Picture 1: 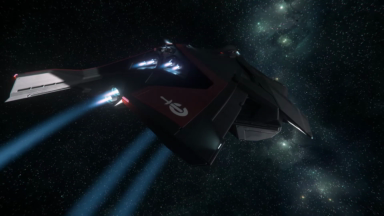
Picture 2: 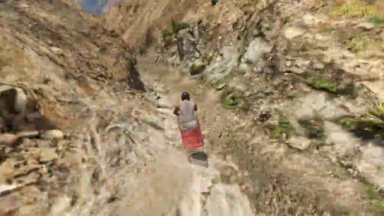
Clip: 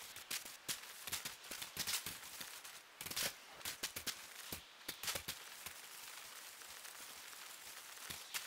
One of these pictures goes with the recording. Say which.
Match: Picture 2